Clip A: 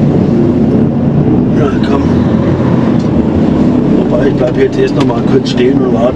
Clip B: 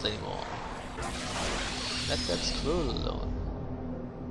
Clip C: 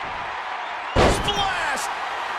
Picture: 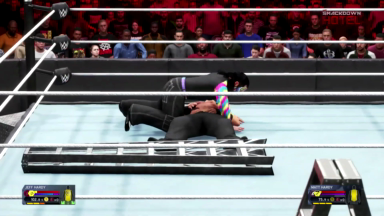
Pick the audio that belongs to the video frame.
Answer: C